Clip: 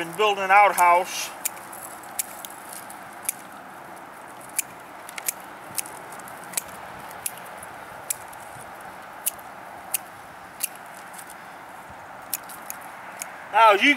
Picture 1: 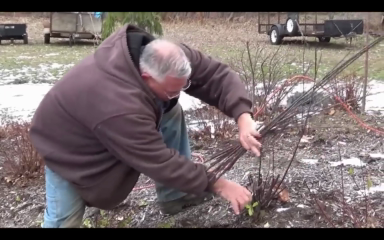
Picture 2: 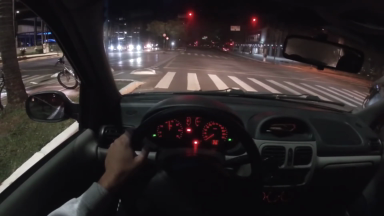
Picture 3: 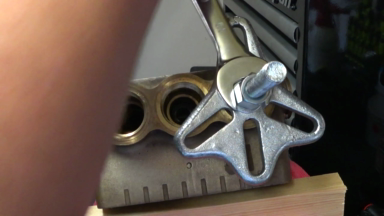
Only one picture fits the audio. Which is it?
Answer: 1